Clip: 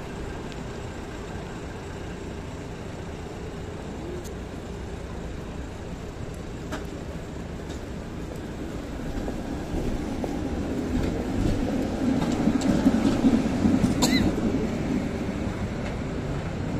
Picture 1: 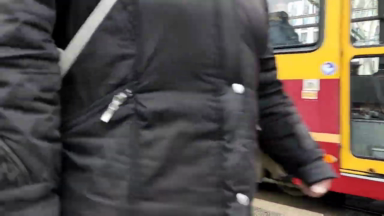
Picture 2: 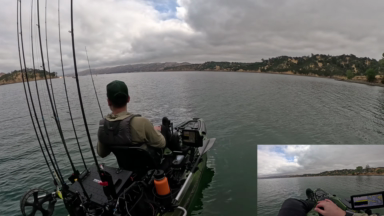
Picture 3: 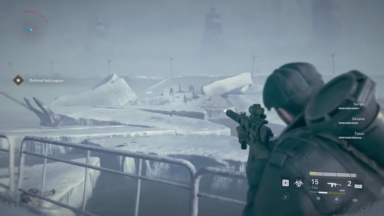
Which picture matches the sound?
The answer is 1